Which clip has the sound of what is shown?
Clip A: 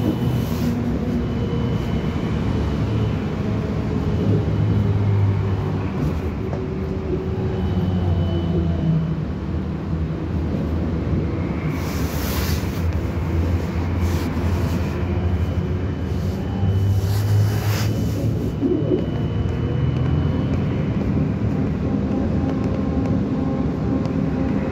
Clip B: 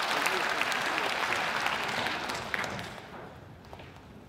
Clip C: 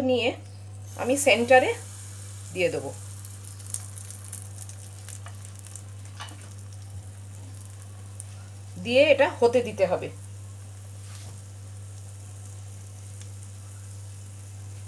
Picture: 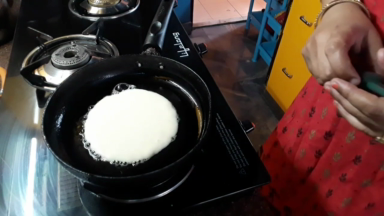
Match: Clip C